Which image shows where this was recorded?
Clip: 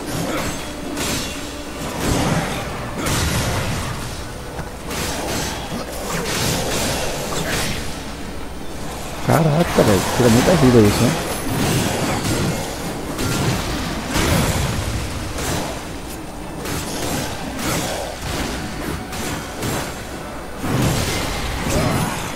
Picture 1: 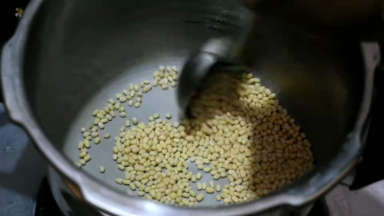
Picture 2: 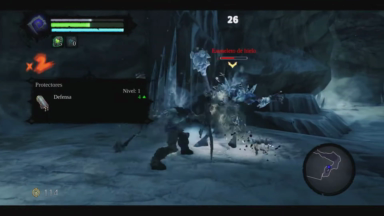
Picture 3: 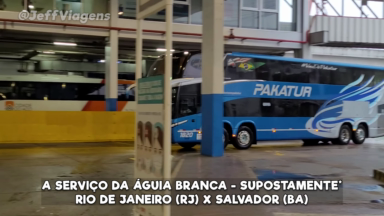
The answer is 2